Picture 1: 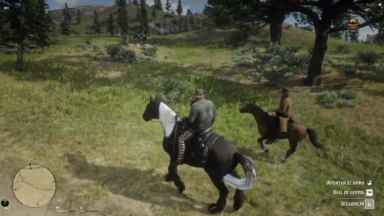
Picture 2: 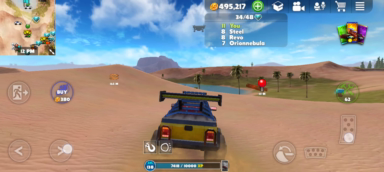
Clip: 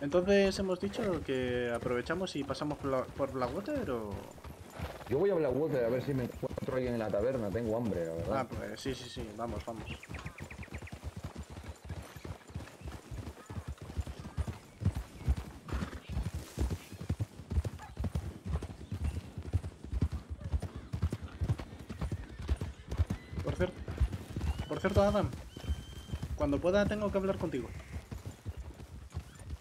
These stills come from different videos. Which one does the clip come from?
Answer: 1